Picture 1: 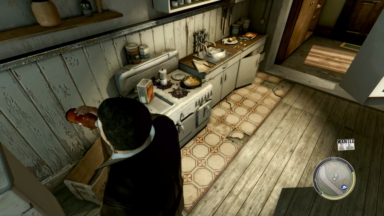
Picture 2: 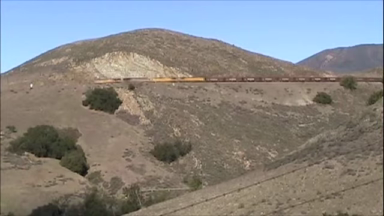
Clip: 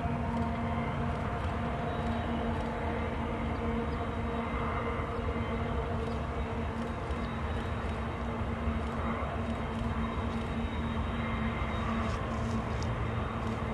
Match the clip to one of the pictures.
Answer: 2